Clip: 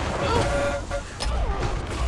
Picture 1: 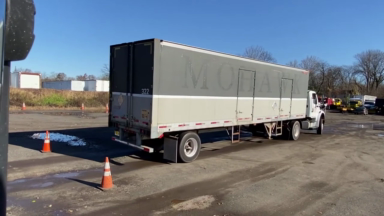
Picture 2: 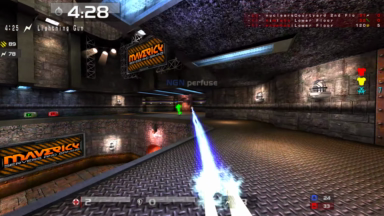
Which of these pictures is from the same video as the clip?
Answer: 2